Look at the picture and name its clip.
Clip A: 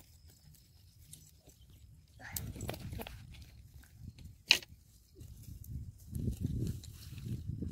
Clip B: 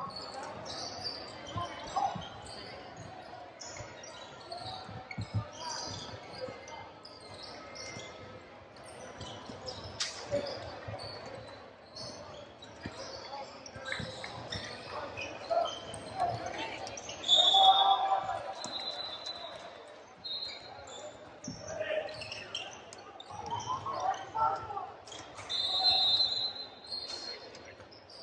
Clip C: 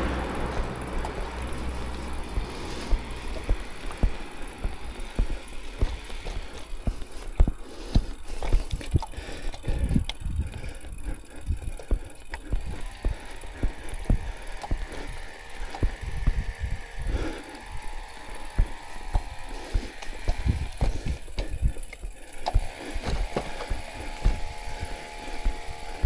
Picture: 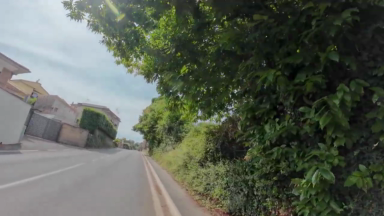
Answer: C